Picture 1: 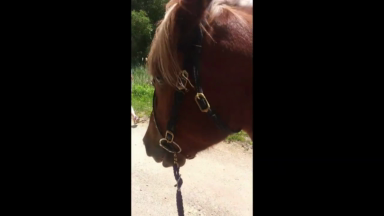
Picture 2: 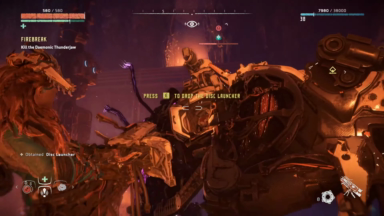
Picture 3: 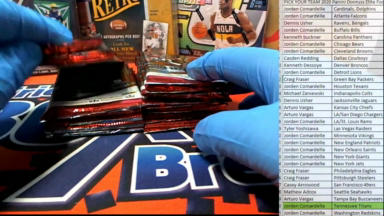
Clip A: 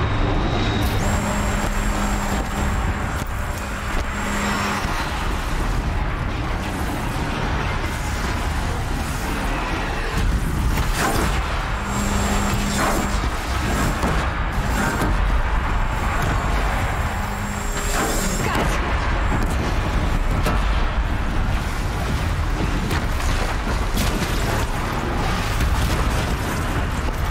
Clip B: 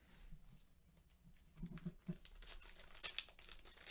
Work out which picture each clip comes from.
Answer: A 2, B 3